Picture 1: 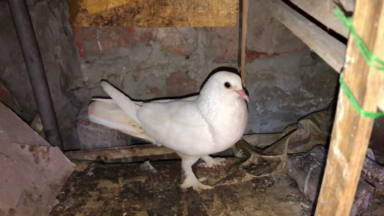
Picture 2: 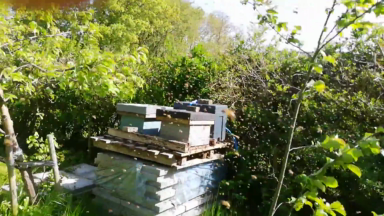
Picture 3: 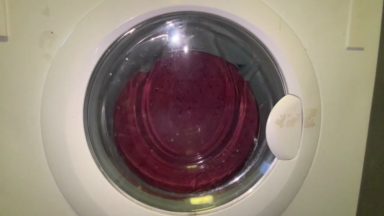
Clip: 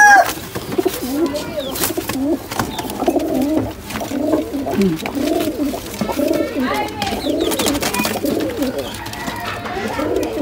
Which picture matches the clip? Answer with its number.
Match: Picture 1